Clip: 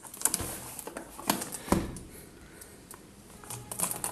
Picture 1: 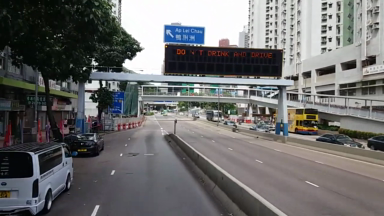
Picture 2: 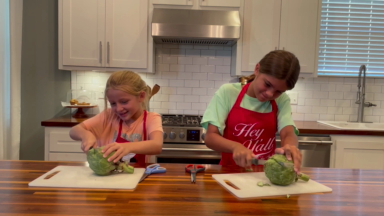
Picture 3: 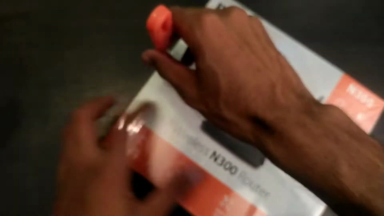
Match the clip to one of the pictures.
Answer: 3